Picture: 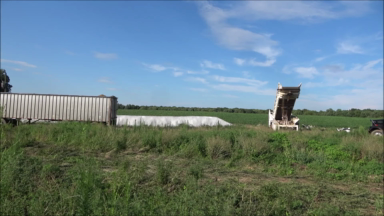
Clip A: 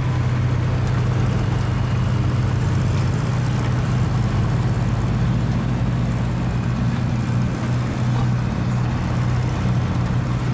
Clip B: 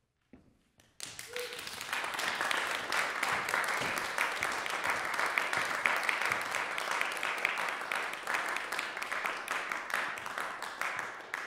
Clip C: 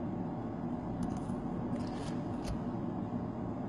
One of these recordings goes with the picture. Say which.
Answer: A